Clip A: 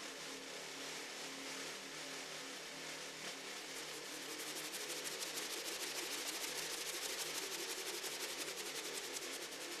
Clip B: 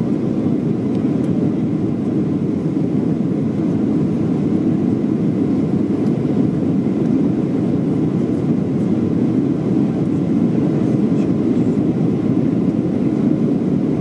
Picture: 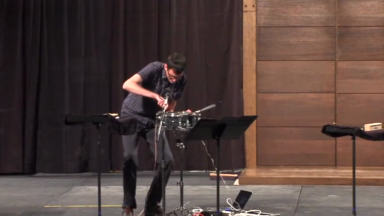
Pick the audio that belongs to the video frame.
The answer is A